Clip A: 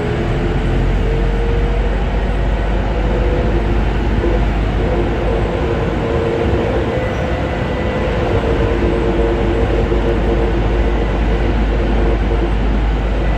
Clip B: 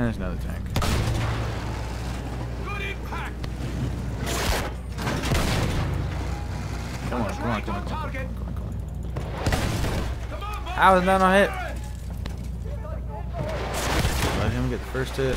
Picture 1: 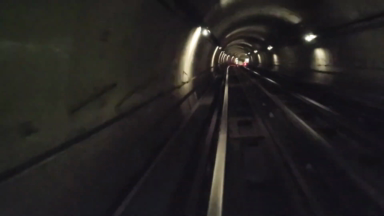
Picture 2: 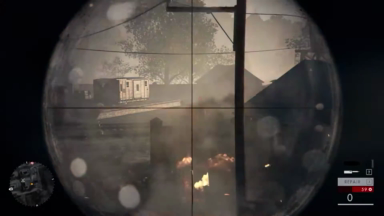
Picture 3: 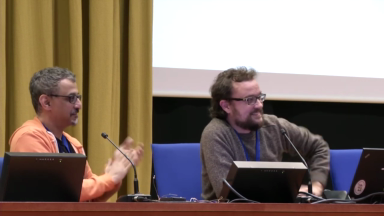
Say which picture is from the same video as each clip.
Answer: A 1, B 2